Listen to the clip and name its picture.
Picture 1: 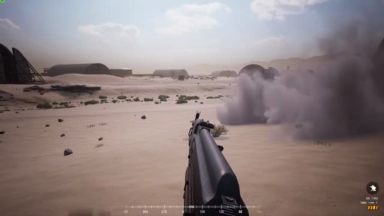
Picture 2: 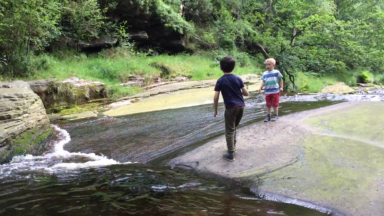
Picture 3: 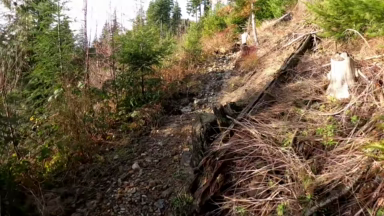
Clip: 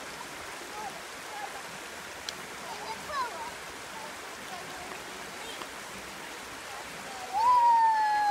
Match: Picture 2